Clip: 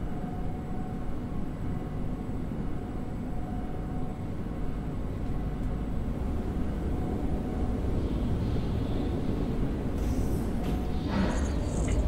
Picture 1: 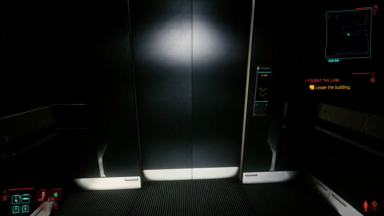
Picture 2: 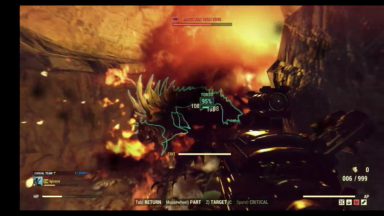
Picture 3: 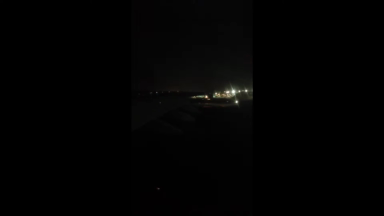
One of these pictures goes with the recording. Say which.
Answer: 1